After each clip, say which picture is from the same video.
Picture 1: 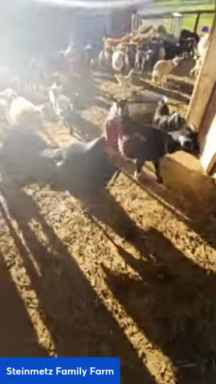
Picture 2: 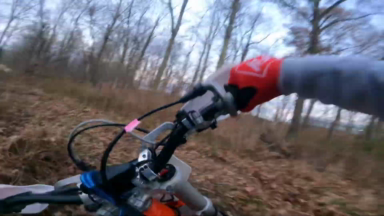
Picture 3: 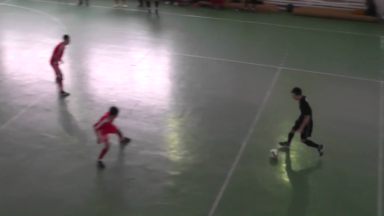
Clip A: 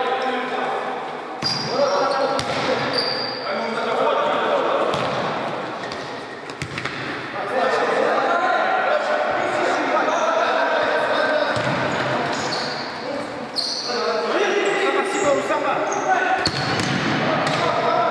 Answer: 3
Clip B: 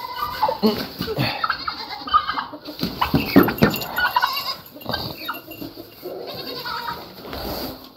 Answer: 1